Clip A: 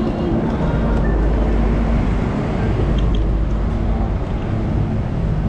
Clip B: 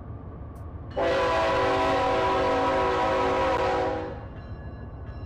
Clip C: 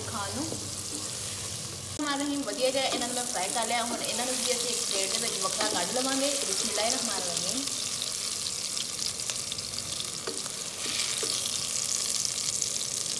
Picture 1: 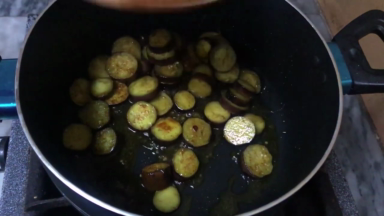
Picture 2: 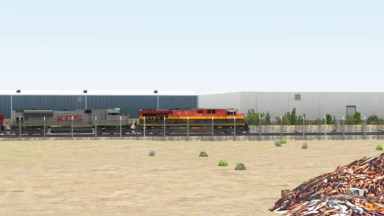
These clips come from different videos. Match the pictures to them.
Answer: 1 C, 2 B